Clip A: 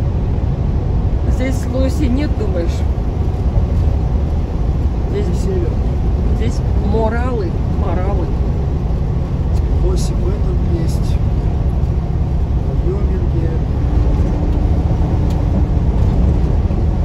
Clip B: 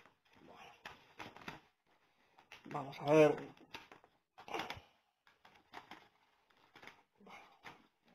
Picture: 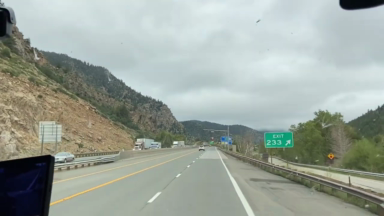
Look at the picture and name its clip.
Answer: A